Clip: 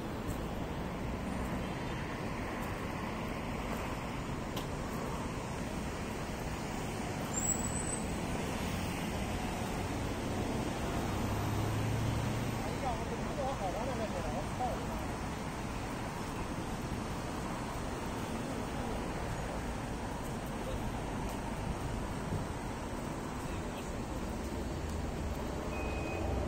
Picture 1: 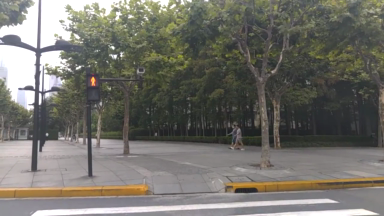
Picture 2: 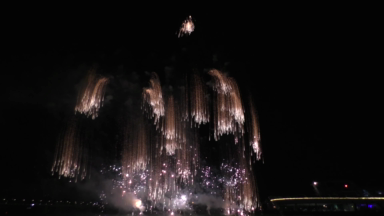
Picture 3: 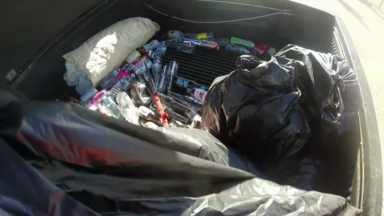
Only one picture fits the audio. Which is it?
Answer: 1